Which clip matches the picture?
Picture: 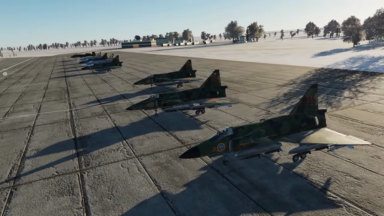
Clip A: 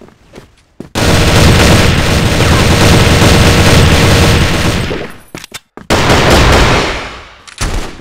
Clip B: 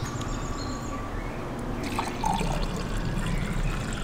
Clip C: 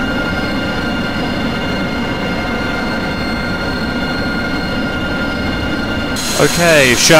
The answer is C